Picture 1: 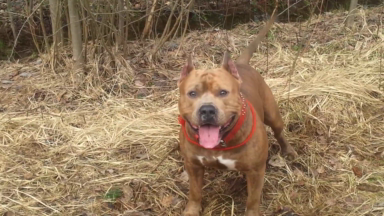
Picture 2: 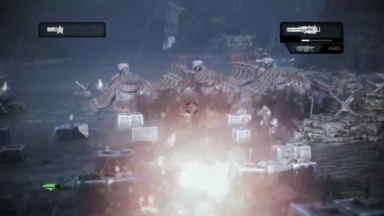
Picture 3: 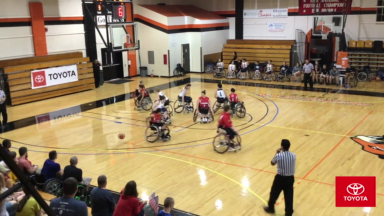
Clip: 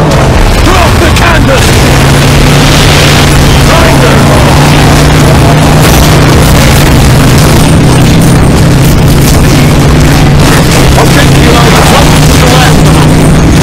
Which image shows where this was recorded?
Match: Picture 2